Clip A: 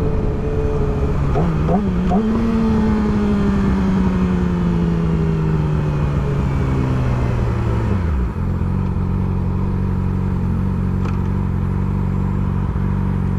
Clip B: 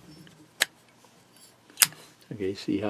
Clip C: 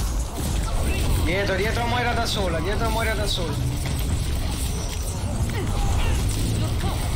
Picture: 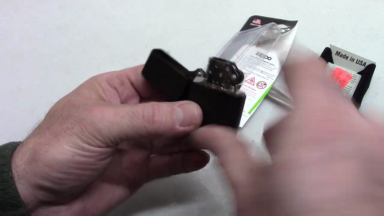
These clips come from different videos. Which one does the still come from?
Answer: B